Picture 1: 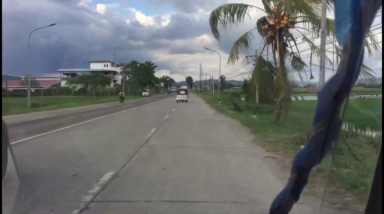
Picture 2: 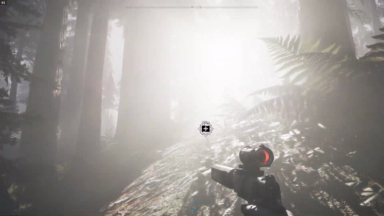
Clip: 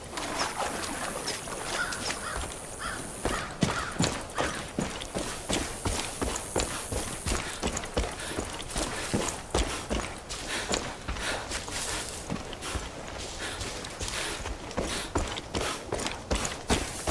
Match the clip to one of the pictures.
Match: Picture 2